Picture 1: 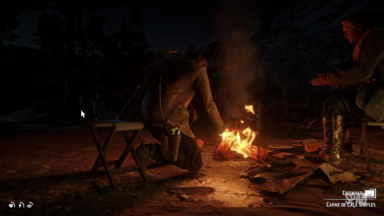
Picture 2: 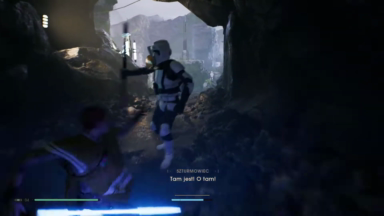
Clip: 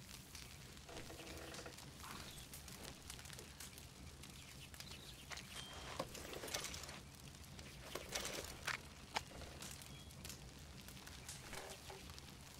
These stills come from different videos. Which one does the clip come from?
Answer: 1